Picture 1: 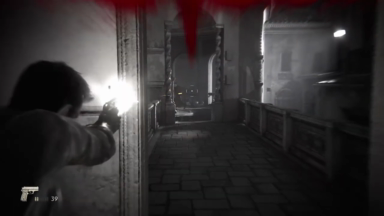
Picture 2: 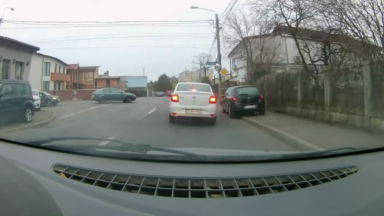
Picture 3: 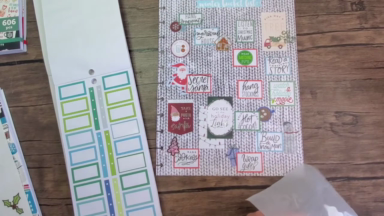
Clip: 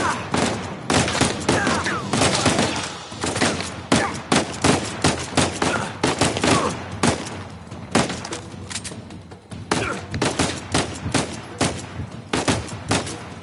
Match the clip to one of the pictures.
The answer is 1